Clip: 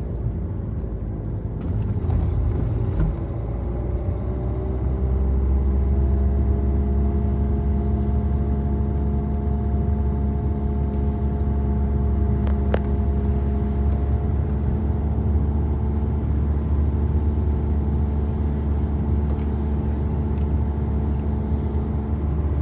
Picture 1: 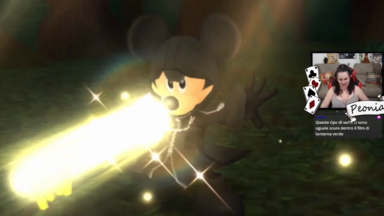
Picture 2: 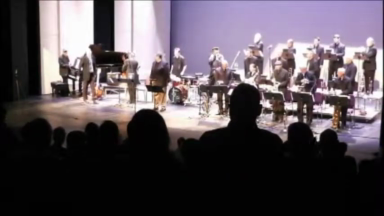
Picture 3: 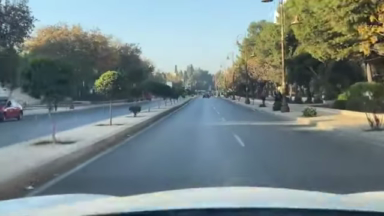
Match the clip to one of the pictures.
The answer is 3